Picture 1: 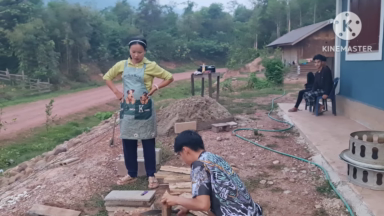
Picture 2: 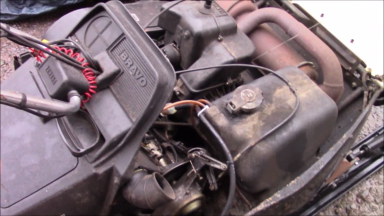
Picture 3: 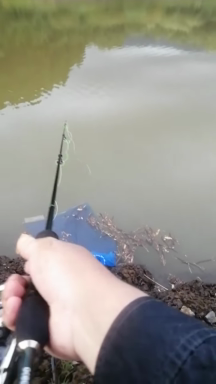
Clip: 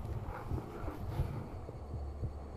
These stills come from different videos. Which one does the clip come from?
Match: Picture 3